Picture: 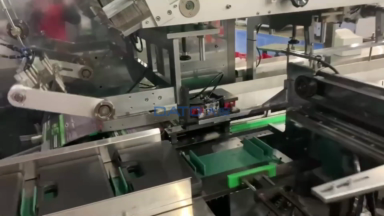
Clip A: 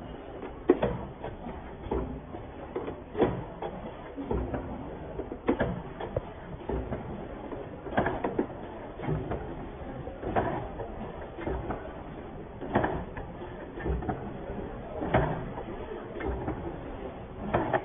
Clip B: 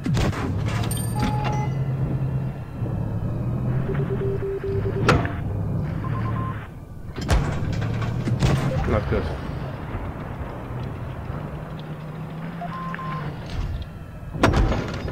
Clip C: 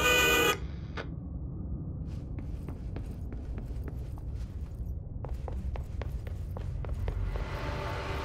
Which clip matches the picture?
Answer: A